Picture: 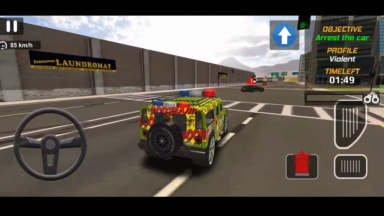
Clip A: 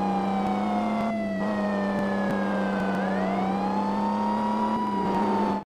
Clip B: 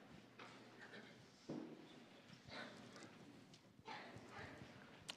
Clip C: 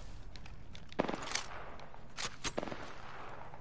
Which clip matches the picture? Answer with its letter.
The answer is A